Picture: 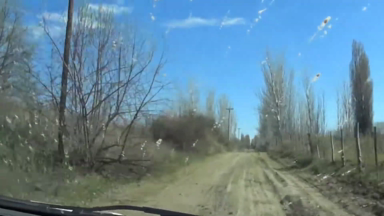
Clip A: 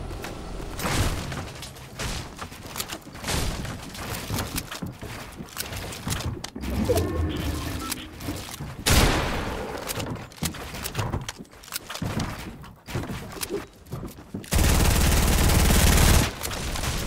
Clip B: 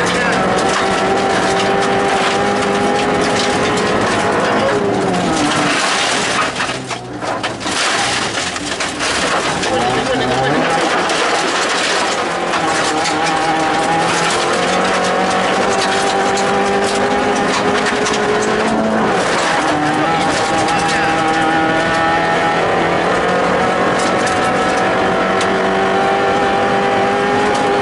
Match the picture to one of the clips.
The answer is B